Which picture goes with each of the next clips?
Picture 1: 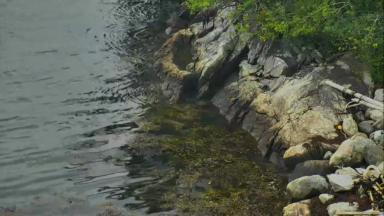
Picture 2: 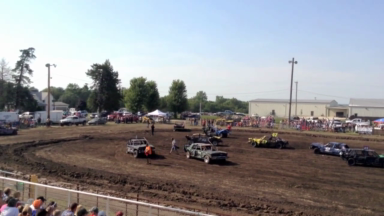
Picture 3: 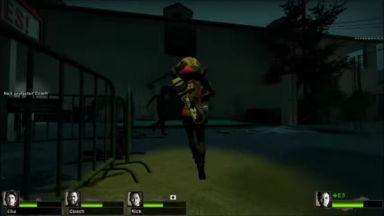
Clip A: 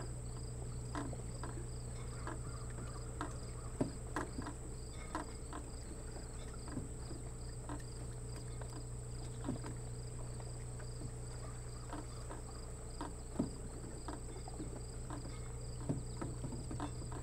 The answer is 1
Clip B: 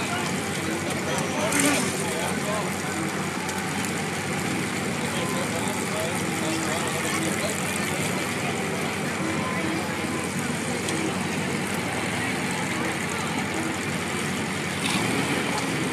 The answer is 2